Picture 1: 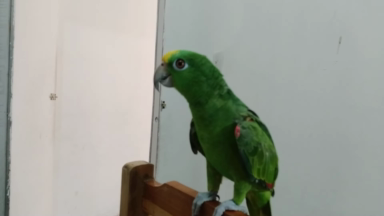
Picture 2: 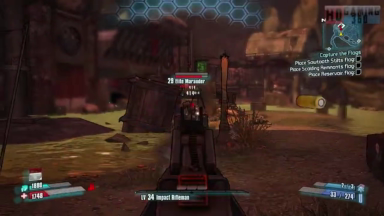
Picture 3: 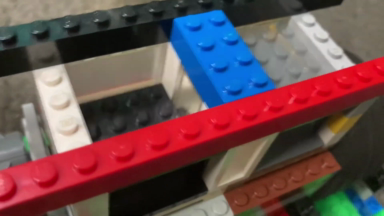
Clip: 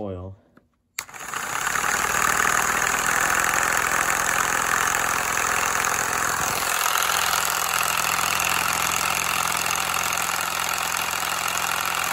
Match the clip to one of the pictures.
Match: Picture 3